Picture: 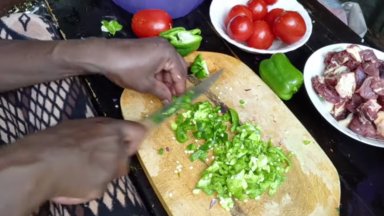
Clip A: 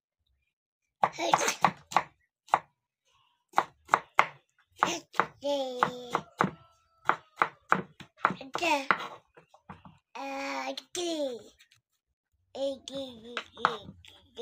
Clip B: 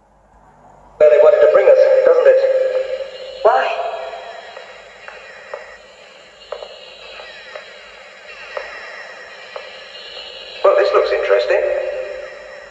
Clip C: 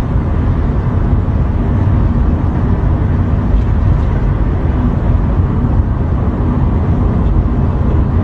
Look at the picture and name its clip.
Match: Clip A